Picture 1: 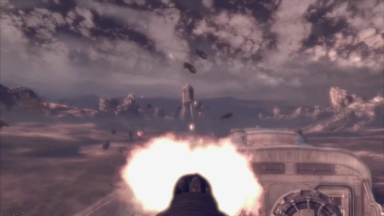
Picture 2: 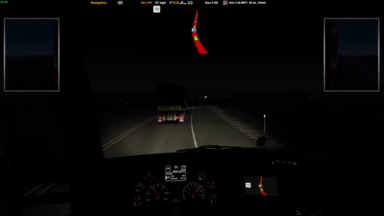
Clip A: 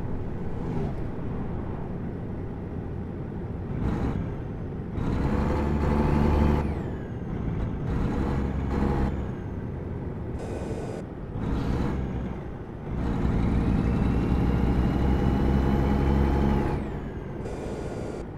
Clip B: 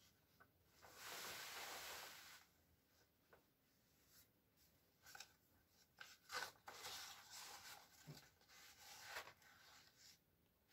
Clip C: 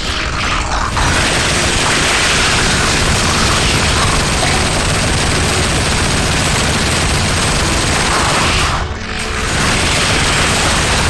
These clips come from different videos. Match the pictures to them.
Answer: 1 C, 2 A